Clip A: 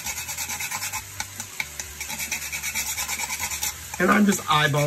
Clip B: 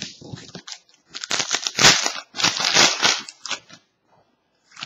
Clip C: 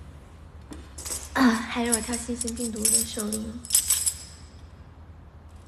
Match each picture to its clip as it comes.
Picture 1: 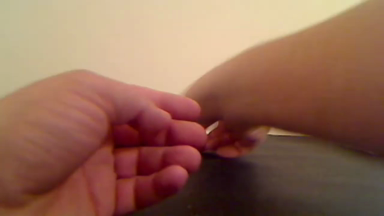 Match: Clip B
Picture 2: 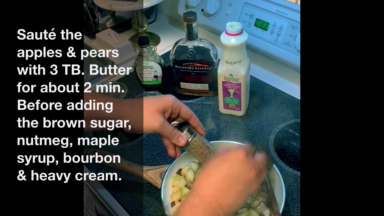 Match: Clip A